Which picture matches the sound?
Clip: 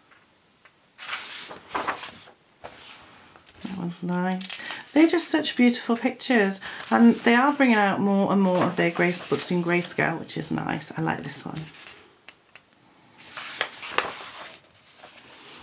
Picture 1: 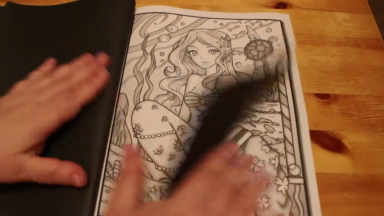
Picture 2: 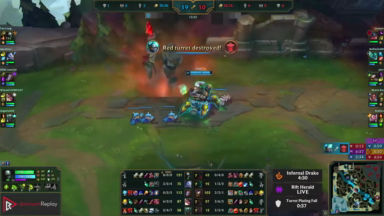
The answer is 1